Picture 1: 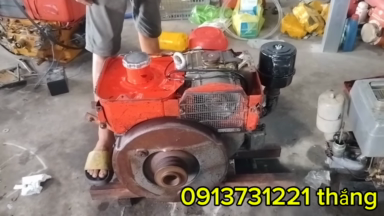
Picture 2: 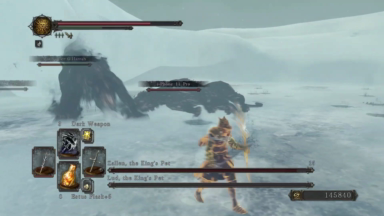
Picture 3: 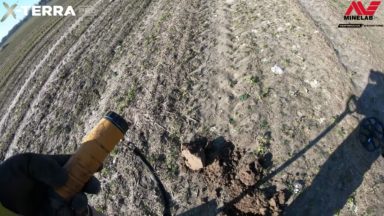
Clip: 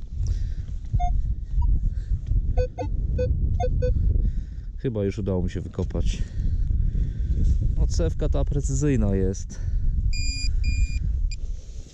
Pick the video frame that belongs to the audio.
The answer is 3